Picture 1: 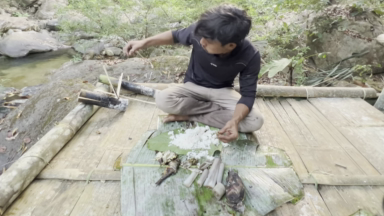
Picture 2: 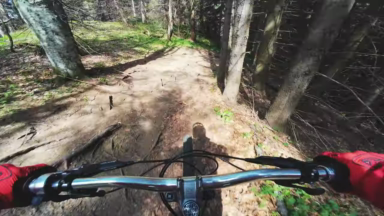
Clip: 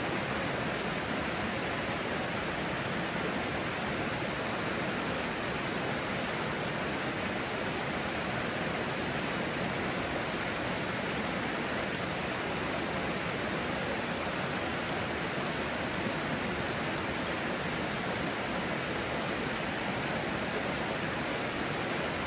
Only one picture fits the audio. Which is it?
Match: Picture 1